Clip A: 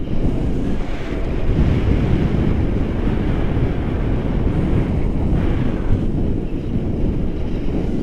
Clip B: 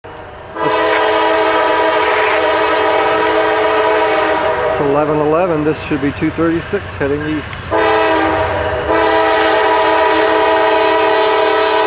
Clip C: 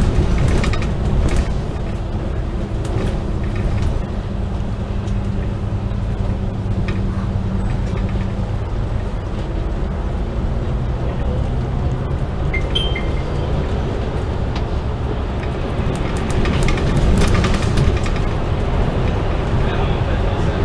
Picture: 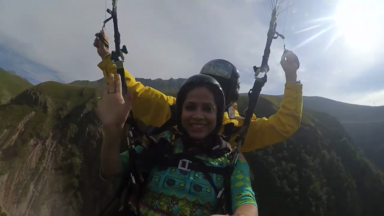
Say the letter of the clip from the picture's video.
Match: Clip A